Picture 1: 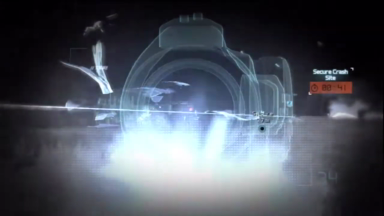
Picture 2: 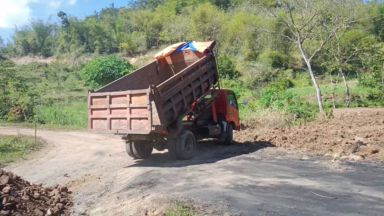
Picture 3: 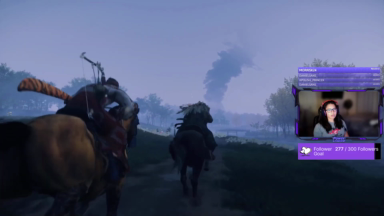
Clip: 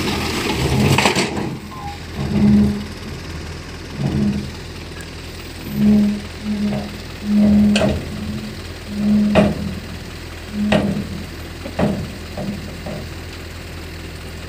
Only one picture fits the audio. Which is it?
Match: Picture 2